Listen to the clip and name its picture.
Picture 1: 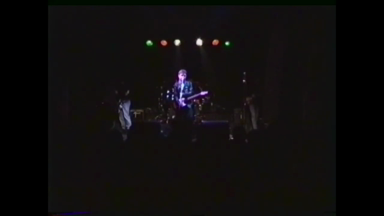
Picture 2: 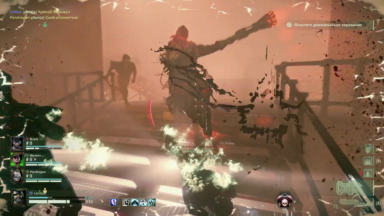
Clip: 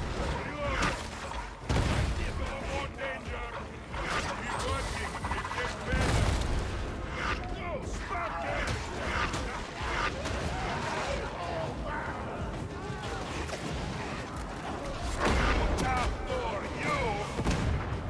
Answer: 2